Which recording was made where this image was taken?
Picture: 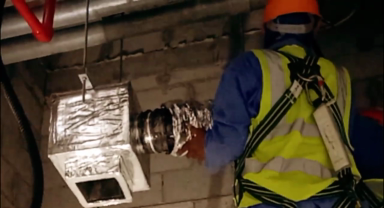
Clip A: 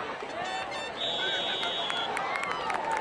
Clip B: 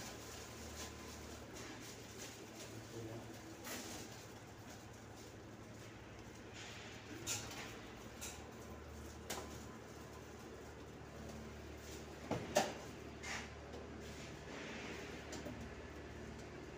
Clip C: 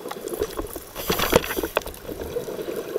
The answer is B